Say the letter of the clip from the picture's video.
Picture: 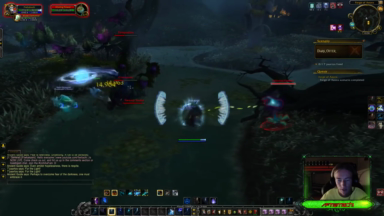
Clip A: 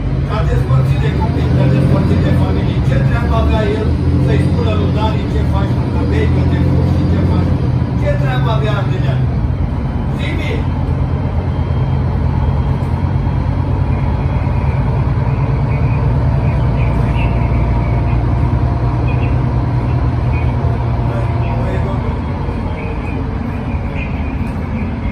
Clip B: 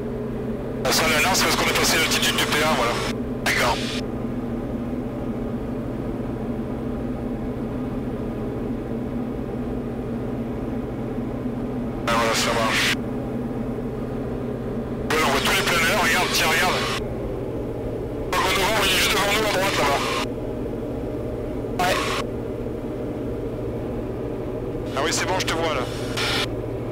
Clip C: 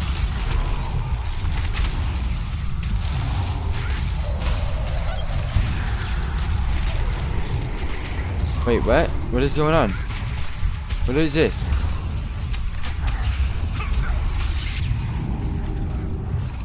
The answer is C